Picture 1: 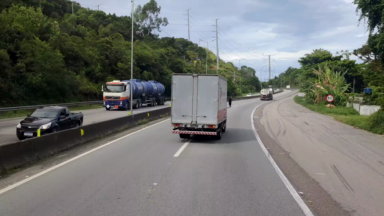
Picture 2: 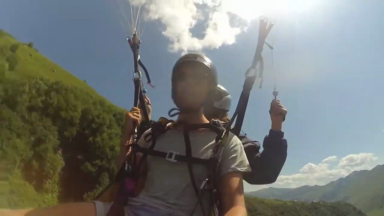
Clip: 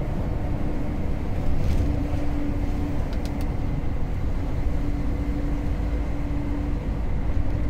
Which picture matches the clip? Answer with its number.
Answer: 1